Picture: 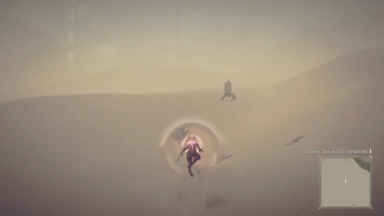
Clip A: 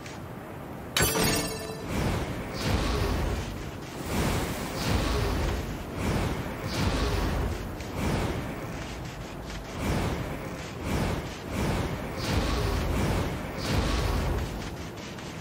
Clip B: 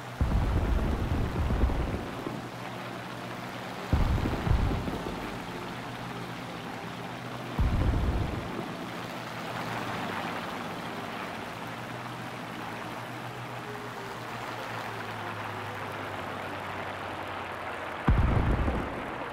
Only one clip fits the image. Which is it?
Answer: A